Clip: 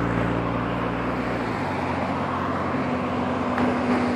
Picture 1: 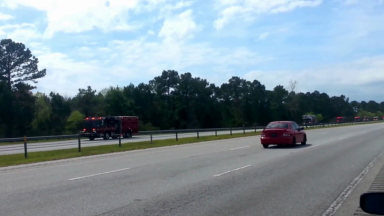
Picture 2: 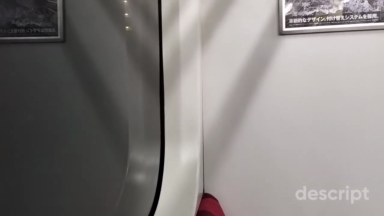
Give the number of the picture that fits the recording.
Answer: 1